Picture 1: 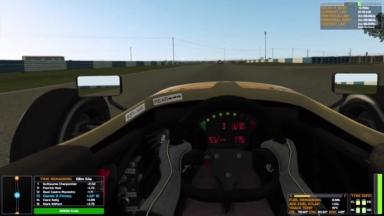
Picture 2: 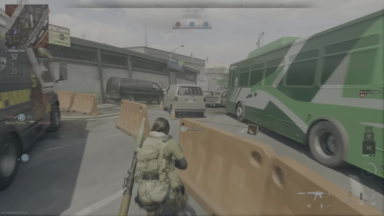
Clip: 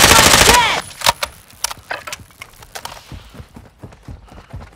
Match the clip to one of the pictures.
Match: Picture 2